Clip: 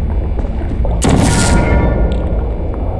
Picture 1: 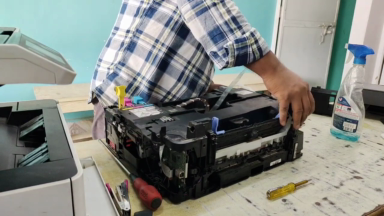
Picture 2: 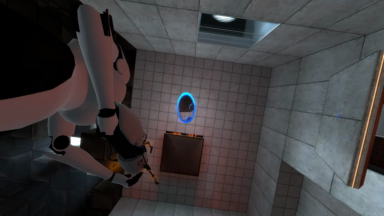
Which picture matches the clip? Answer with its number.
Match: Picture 2